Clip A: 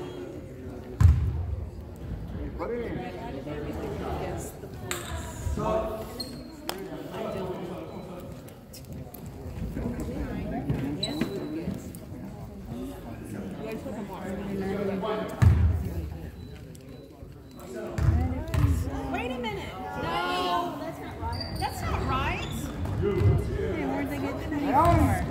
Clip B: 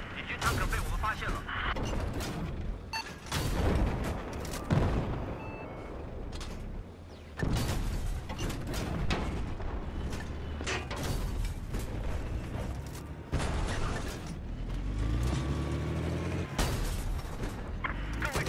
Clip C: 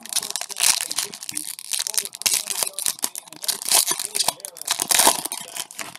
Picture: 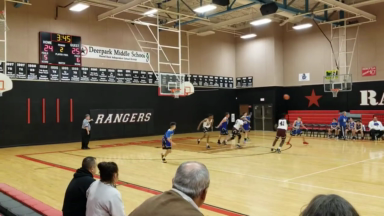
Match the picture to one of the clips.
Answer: A